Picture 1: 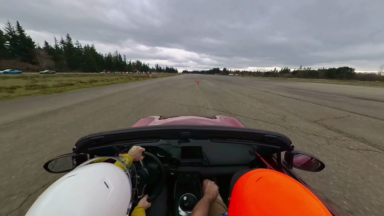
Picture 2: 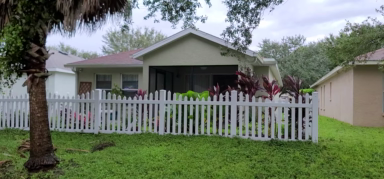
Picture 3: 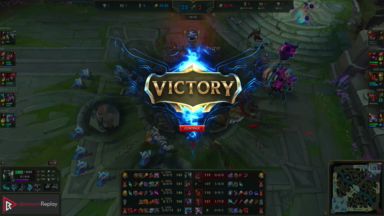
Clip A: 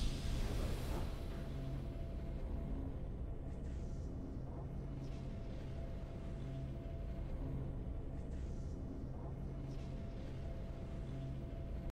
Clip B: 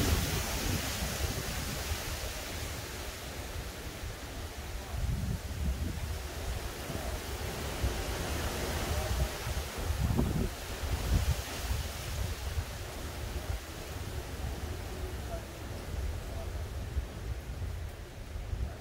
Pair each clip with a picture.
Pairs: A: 3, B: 2